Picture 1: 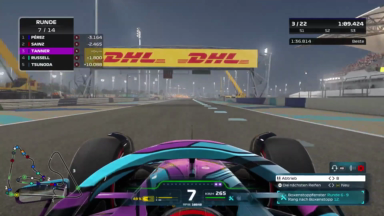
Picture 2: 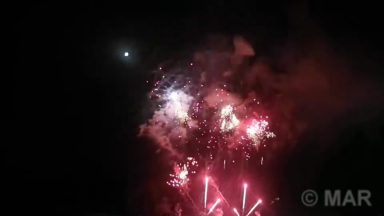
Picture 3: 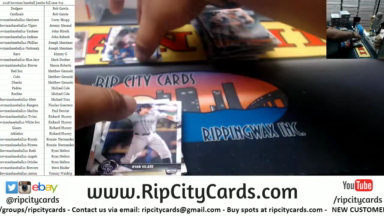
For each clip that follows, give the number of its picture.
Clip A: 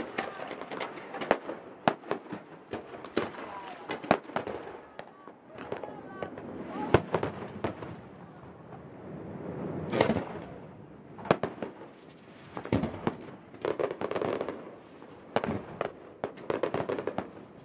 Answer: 2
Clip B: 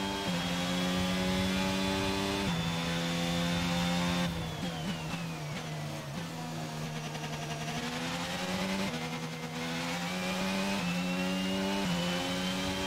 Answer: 1